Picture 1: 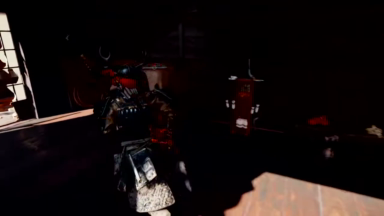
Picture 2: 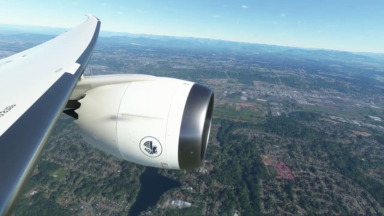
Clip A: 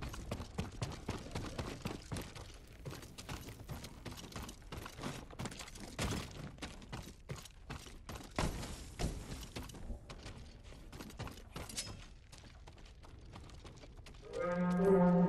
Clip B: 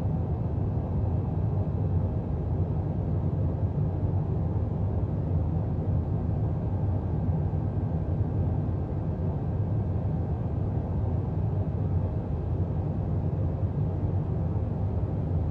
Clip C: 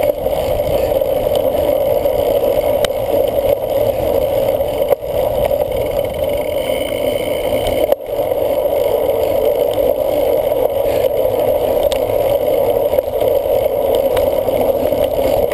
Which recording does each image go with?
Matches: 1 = A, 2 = B